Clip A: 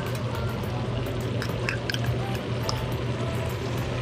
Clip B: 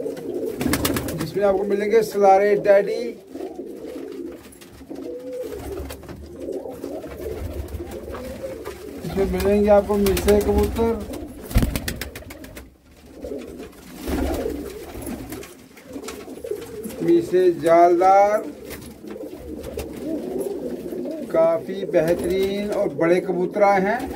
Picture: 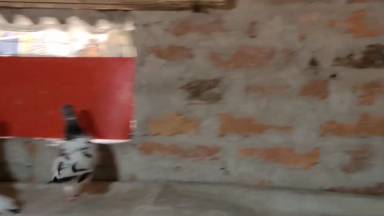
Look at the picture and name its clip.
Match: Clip B